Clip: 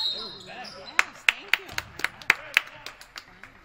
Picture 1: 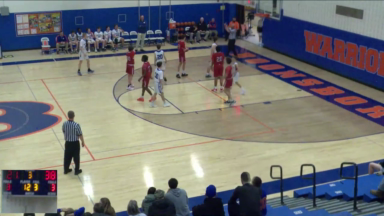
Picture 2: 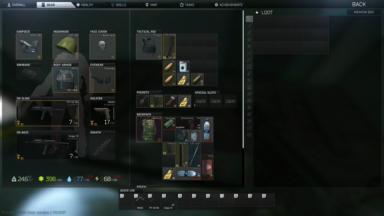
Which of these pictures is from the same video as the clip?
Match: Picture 1